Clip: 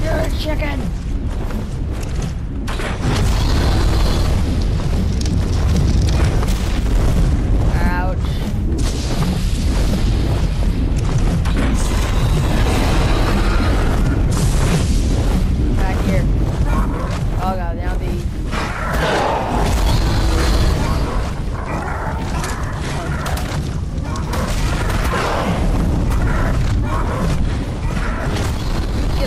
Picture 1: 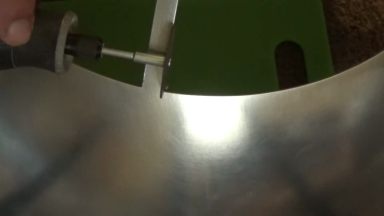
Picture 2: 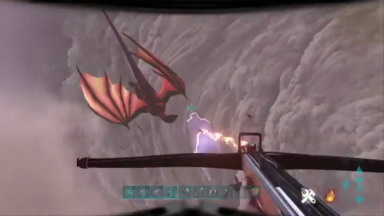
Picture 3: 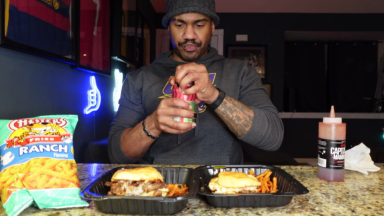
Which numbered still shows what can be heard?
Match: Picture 2